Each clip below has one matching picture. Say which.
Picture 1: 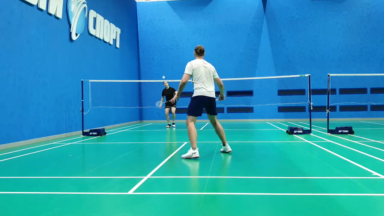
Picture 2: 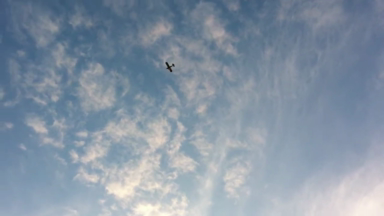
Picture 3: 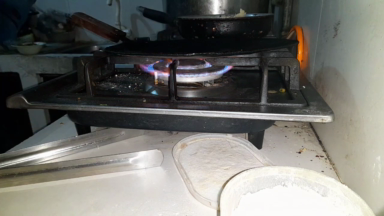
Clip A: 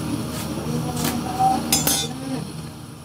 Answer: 3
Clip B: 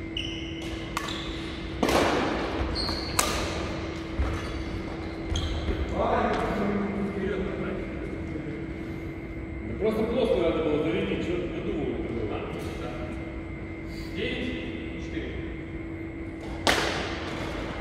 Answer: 1